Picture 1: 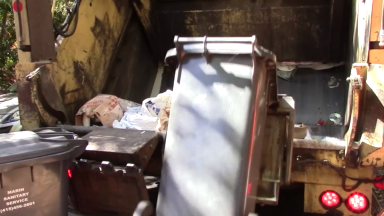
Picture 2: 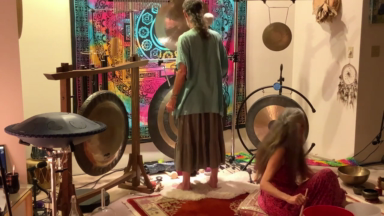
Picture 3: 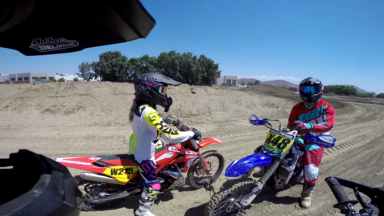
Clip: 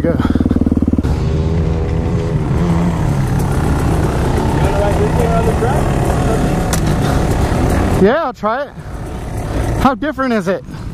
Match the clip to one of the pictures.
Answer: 3